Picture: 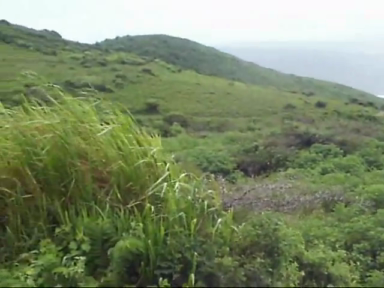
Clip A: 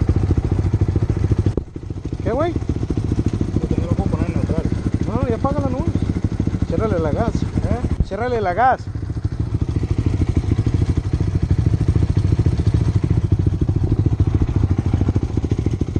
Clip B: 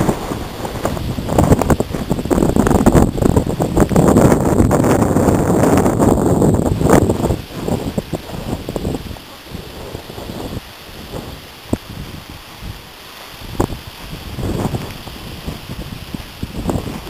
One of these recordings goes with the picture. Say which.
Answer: B